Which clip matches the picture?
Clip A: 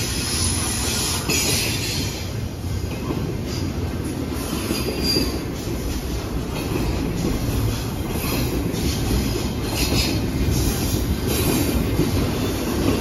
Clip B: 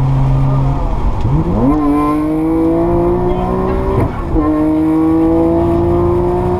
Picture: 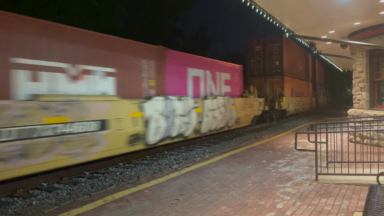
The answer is A